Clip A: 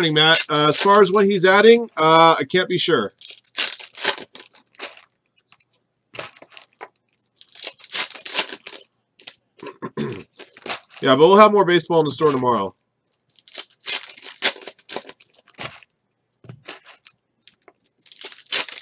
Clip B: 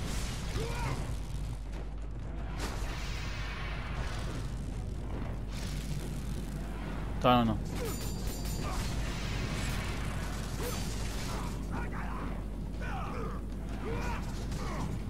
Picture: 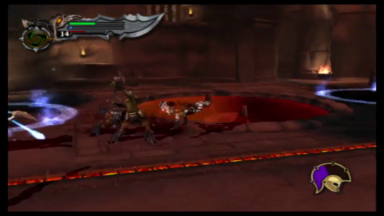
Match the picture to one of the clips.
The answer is B